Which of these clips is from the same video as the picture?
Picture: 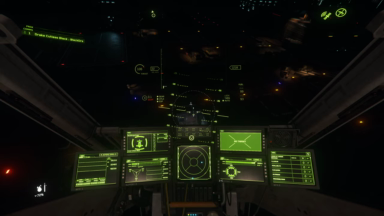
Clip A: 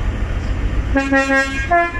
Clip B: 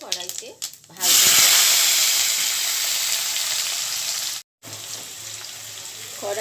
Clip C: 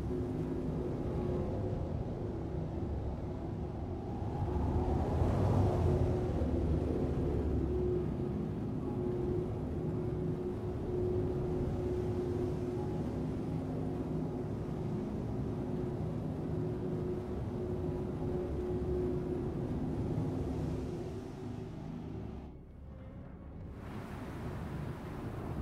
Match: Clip C